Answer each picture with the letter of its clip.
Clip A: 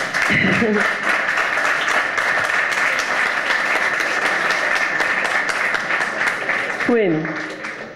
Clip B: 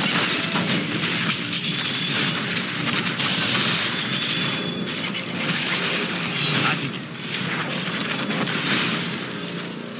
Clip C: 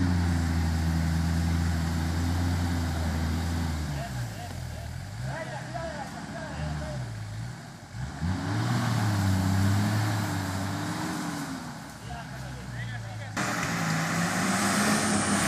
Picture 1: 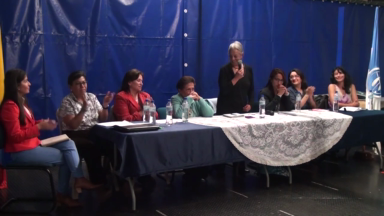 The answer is A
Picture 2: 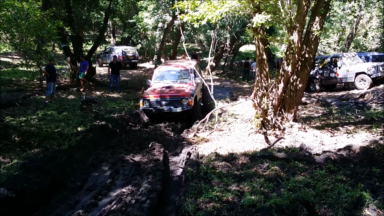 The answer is C